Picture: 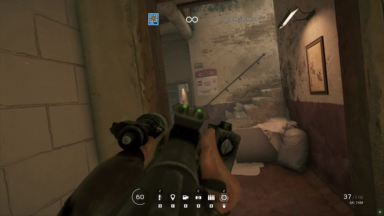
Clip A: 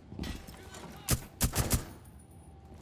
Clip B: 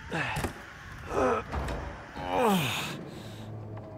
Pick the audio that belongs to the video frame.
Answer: A